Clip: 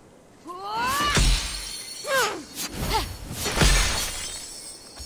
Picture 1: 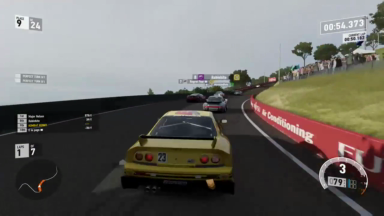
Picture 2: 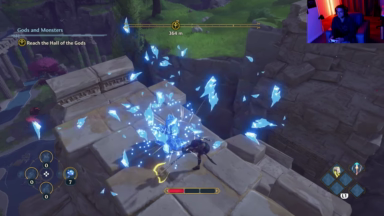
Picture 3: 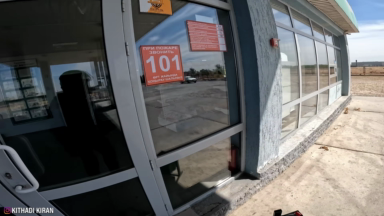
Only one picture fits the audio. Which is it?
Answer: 2